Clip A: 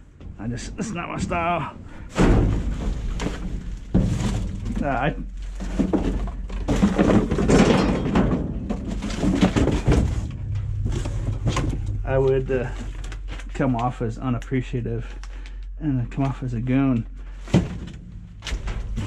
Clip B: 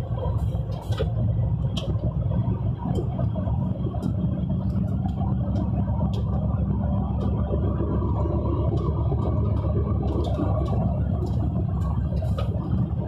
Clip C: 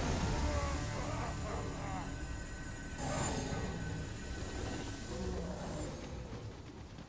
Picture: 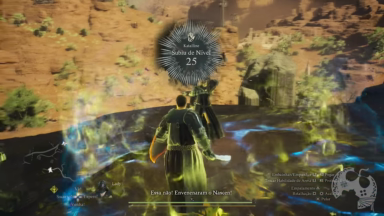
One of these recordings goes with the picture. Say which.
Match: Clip C